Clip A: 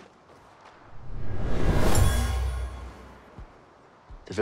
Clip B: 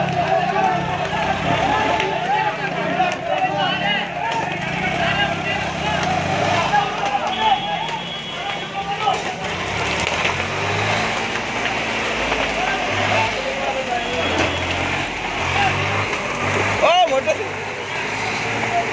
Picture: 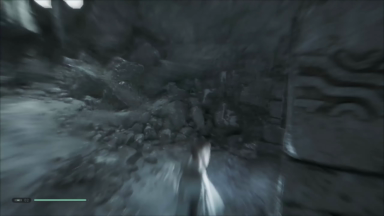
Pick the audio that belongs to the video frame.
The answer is A